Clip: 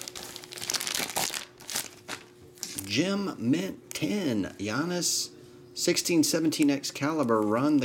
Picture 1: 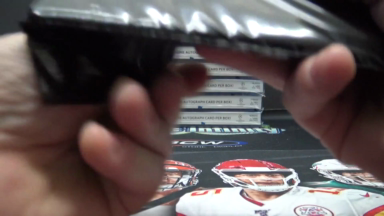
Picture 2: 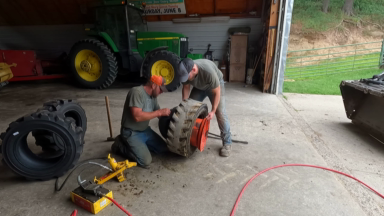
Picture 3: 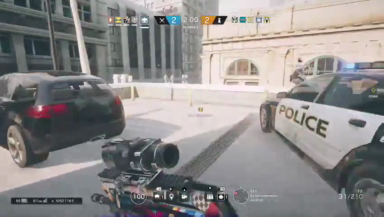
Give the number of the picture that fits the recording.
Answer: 1